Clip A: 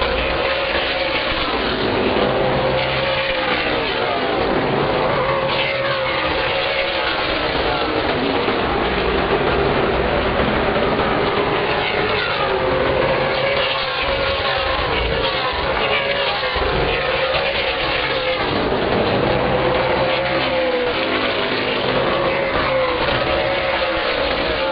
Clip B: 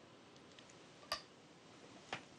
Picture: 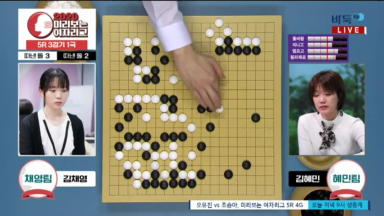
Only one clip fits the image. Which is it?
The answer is B